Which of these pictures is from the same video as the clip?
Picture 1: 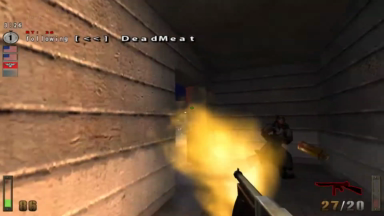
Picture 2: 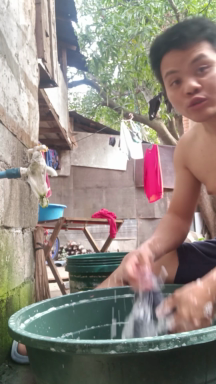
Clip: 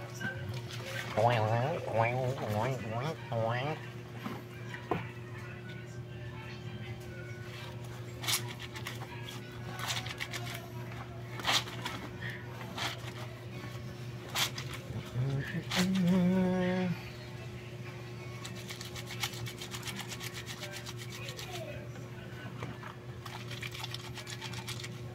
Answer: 2